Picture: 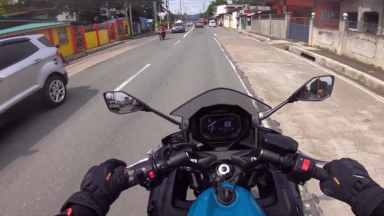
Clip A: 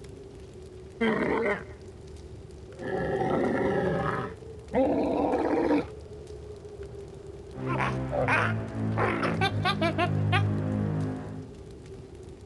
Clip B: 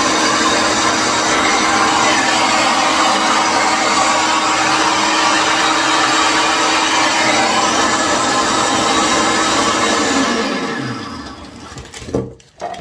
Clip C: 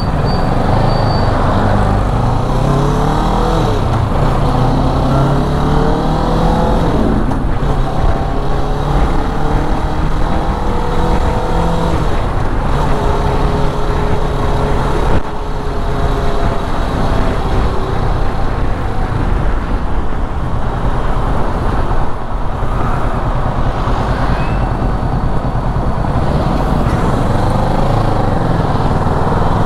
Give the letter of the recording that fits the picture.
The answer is C